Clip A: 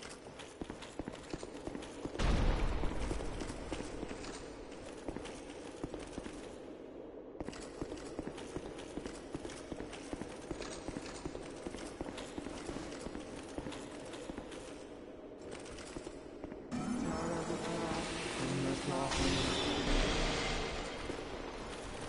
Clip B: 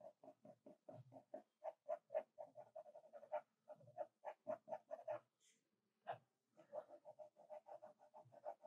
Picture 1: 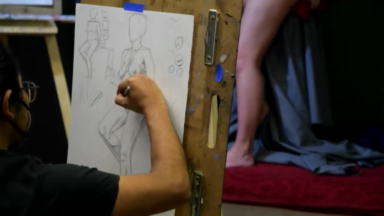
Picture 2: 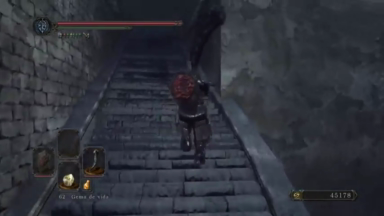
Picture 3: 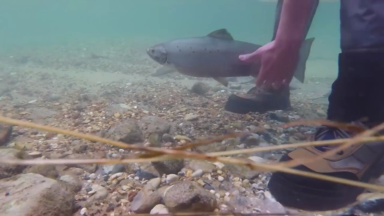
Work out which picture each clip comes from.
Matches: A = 2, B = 1